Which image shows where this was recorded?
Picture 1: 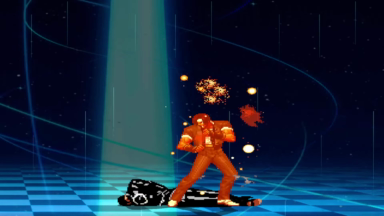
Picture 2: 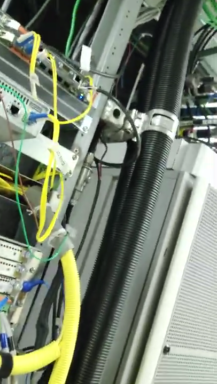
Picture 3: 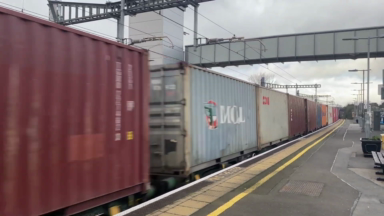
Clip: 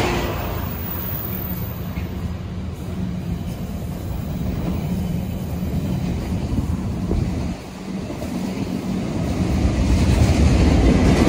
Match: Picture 3